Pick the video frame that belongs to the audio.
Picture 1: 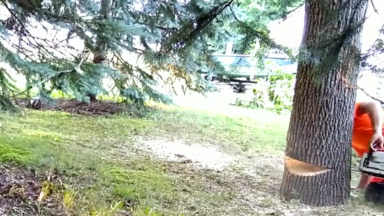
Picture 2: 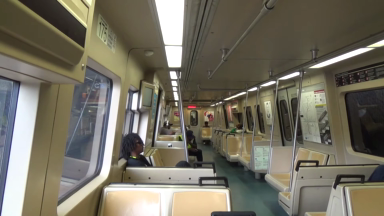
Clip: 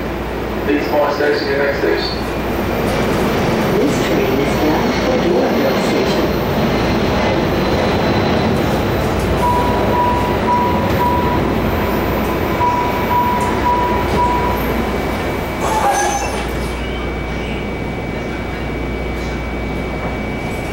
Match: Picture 2